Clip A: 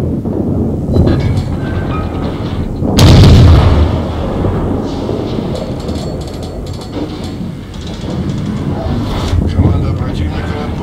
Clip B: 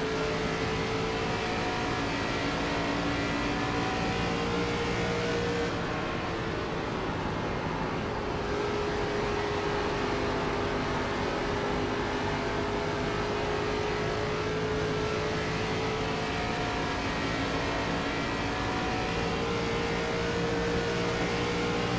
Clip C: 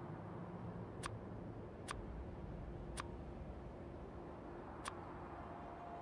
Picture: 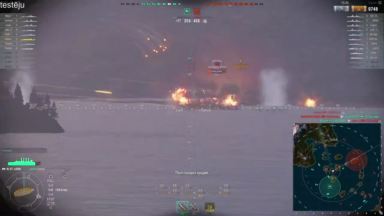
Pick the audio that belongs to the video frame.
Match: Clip A